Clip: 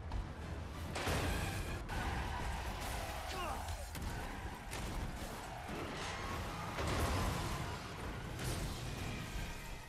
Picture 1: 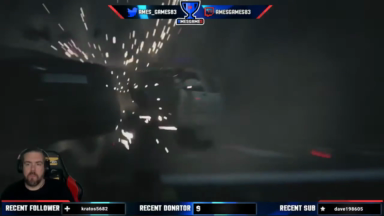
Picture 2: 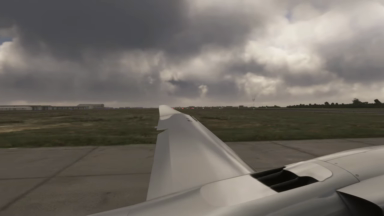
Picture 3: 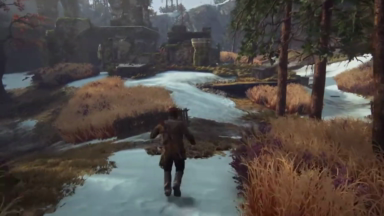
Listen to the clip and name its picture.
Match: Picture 1